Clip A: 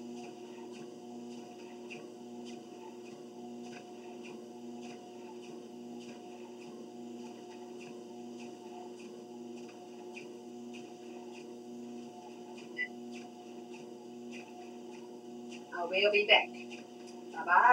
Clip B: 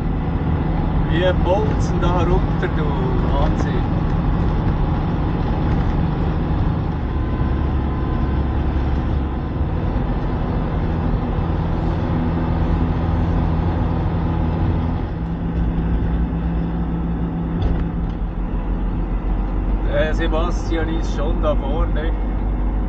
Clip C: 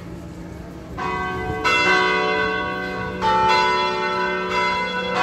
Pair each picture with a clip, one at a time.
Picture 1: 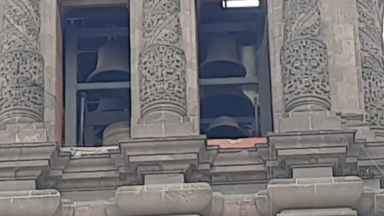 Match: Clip C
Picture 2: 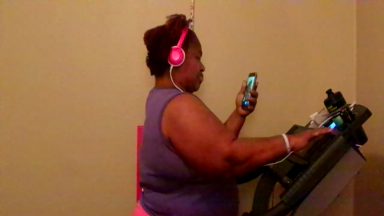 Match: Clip A